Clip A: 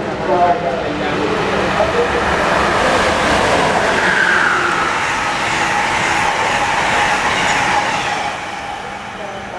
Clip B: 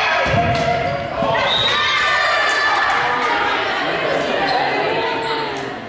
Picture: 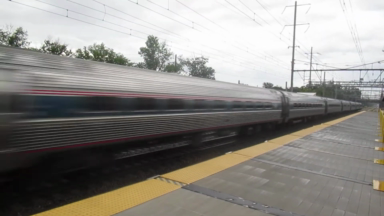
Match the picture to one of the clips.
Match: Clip A